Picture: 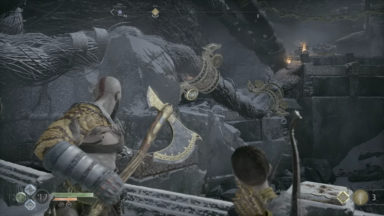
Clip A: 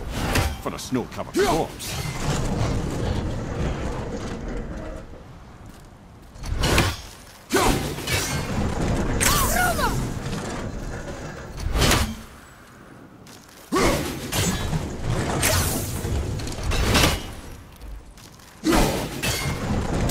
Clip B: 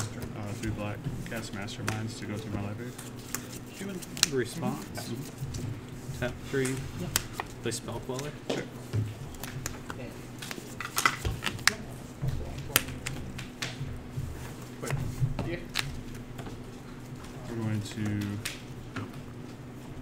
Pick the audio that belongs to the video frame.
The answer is A